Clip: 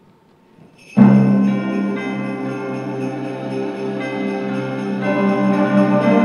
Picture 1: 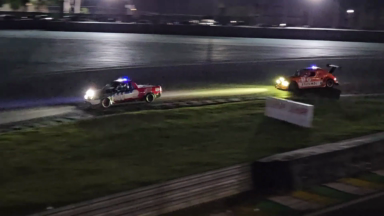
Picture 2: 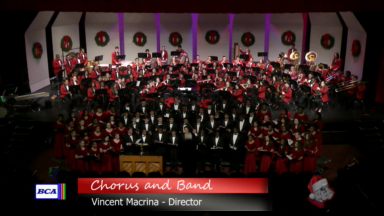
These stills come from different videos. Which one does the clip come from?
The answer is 2